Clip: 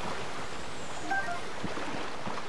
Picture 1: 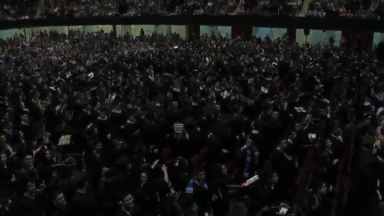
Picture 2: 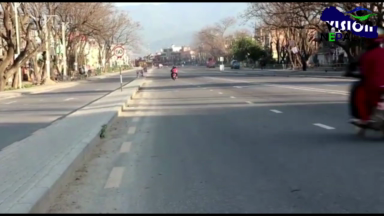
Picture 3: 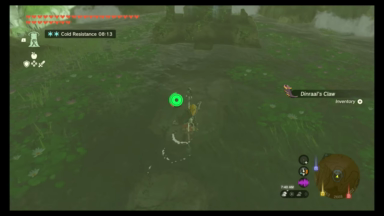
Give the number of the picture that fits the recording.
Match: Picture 3